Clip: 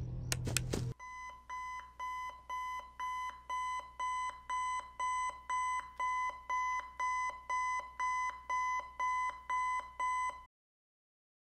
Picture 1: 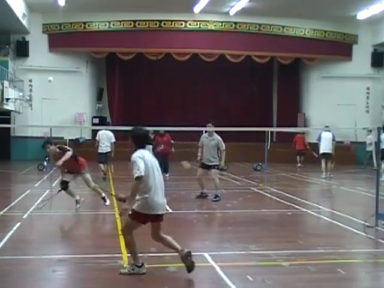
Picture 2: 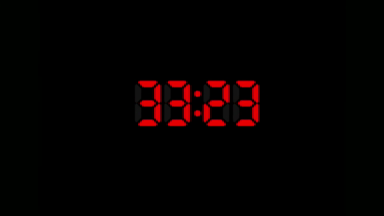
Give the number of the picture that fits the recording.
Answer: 2